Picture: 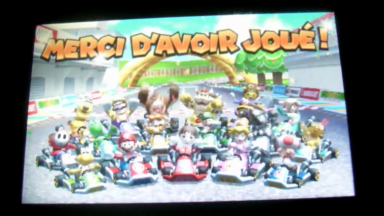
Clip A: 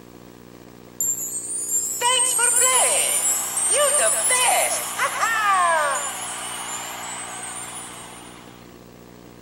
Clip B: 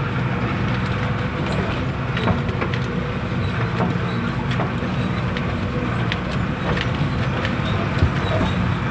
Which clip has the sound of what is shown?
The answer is A